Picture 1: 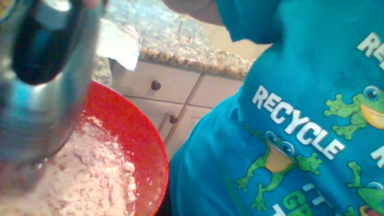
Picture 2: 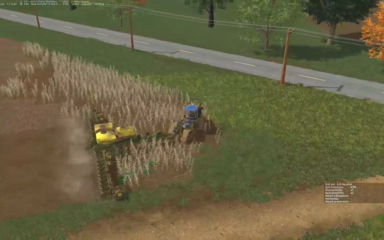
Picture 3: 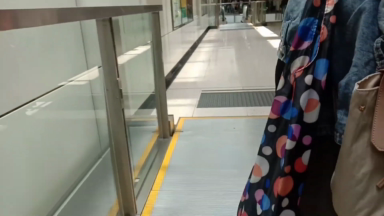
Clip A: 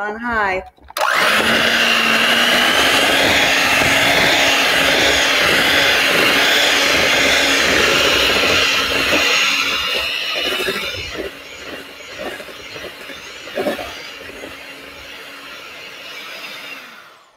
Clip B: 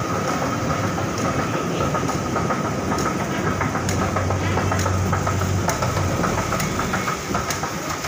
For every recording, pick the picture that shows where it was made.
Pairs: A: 1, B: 3